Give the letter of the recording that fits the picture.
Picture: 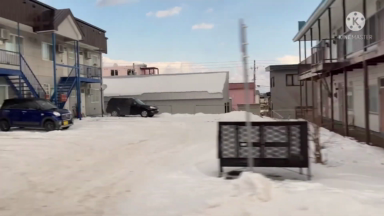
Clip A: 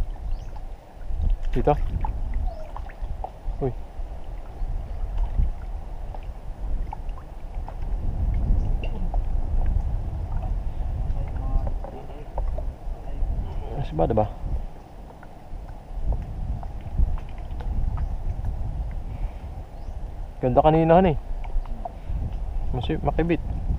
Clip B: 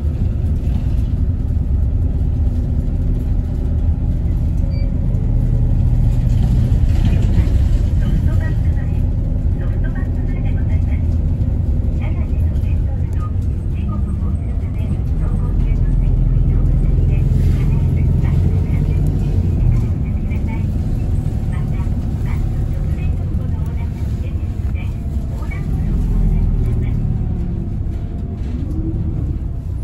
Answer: B